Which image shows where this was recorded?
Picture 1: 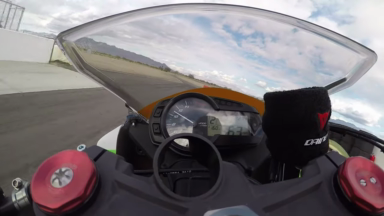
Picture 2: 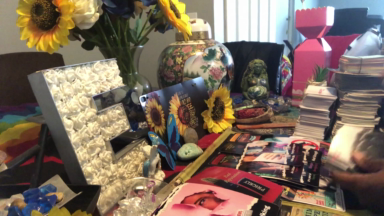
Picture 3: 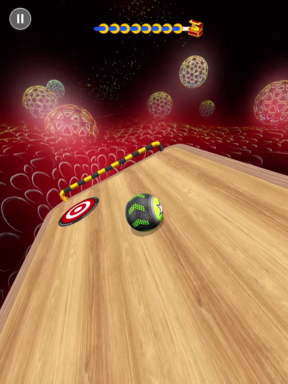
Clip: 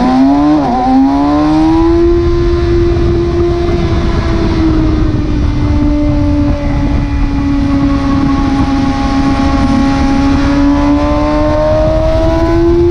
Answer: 1